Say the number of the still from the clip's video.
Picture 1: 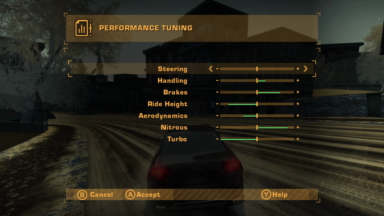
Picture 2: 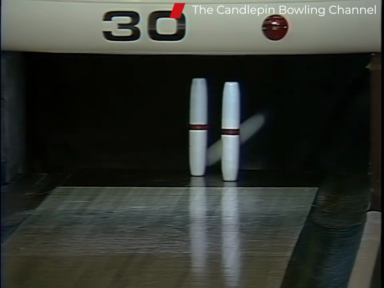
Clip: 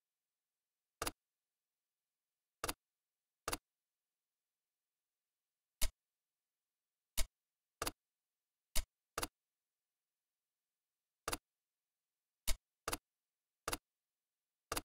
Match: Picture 1